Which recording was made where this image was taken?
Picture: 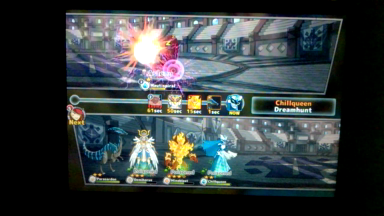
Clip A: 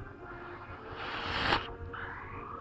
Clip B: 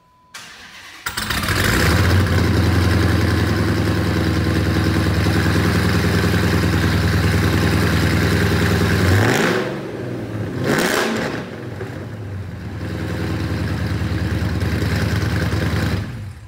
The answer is A